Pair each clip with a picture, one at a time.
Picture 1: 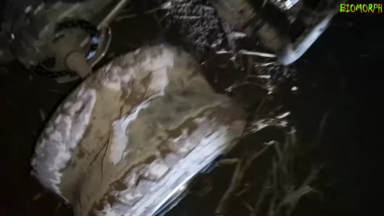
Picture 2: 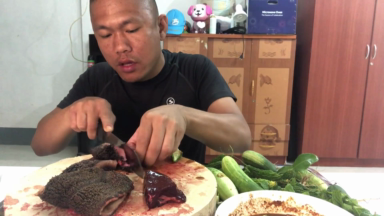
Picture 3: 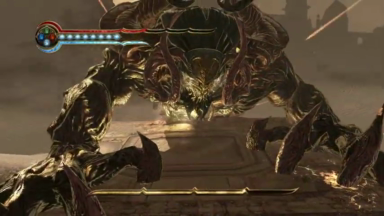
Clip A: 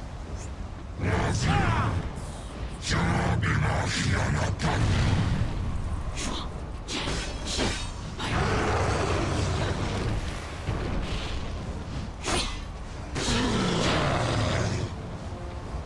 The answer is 3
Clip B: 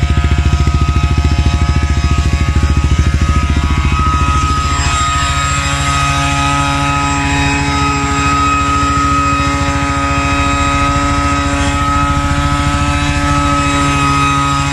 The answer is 1